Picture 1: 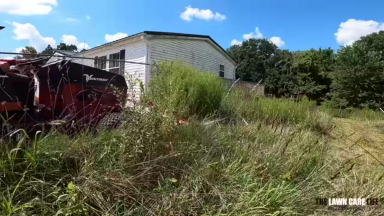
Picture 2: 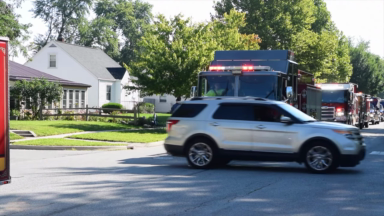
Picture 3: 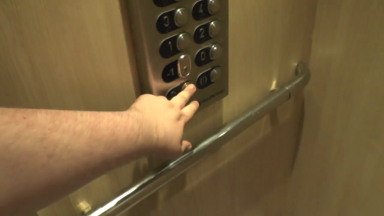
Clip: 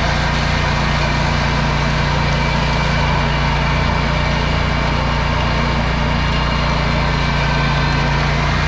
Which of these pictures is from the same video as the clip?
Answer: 1